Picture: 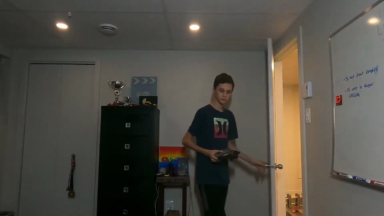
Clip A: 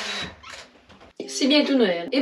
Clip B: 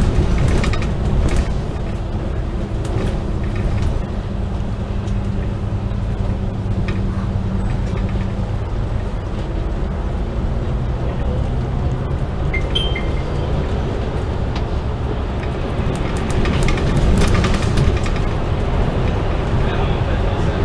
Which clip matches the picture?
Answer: A